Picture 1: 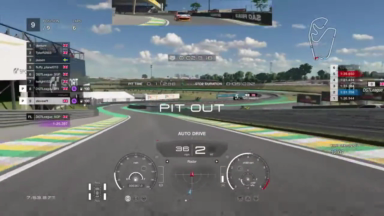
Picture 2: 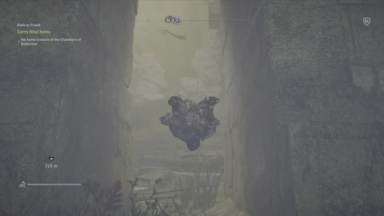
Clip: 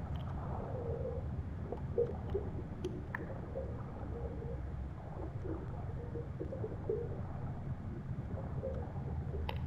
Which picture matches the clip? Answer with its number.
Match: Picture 2